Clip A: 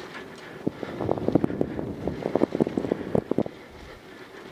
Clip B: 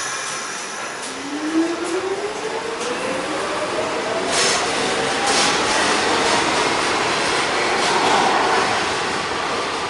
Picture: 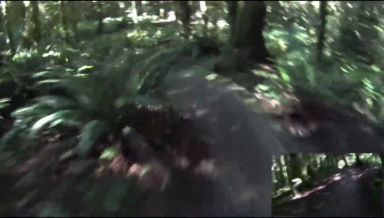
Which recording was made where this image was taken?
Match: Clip A